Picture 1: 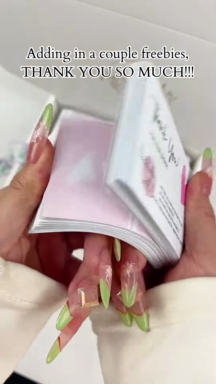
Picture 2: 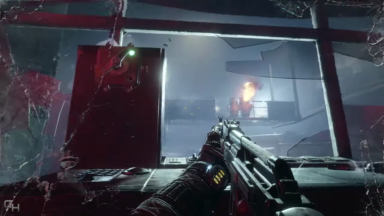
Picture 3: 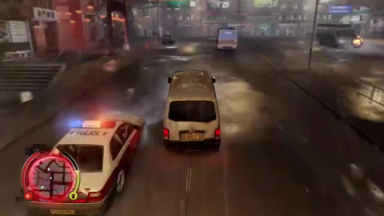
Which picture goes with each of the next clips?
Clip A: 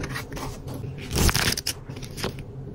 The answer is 1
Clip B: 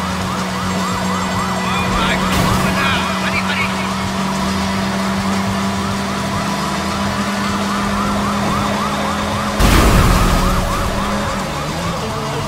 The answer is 3